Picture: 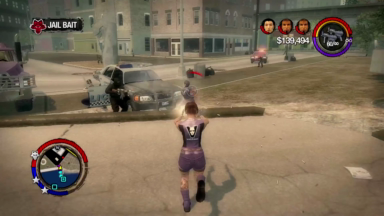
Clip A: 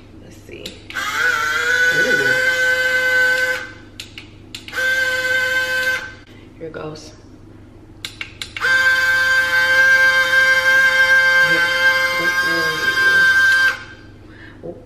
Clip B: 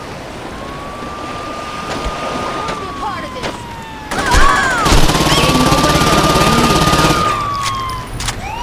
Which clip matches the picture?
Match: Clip B